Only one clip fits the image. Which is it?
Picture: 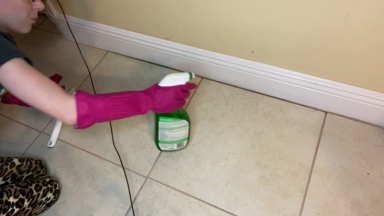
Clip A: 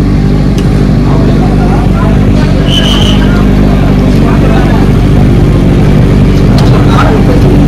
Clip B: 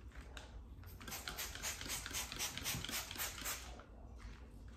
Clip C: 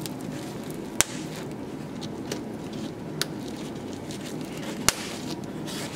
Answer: B